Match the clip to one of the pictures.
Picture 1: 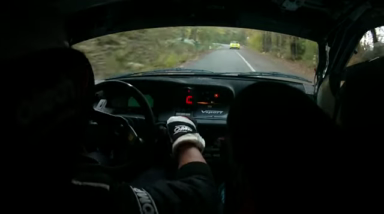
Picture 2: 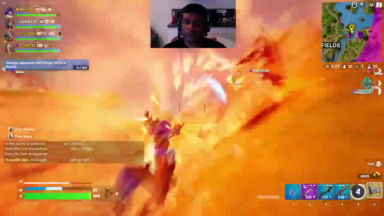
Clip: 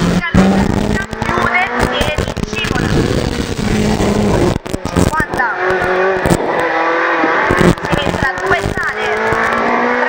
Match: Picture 1